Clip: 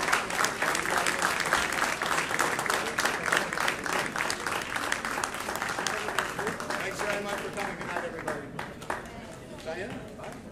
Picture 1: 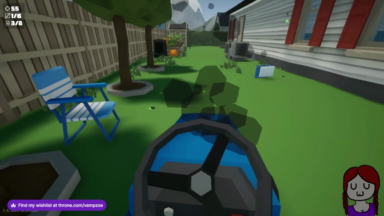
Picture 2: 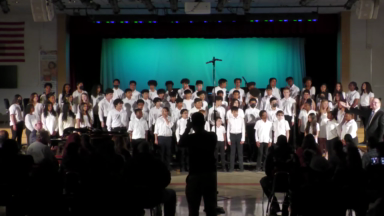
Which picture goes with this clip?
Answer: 2